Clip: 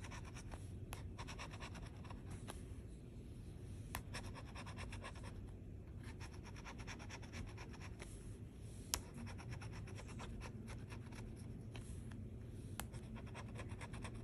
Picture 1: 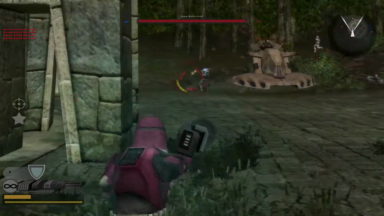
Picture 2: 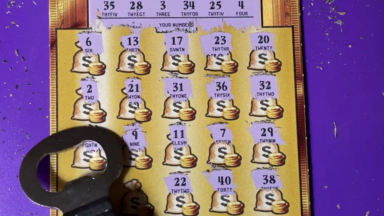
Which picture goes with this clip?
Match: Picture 2